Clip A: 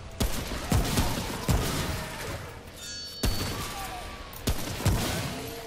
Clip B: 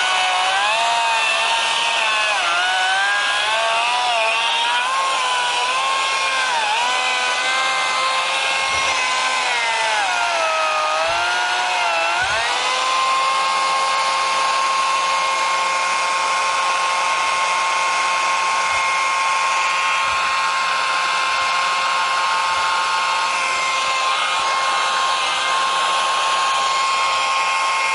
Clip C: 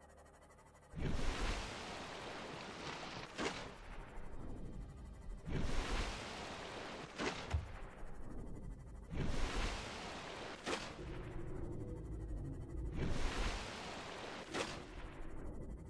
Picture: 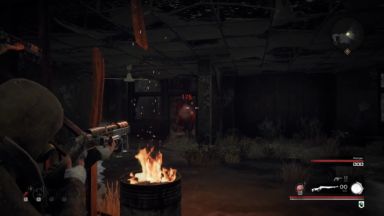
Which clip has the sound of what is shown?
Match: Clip A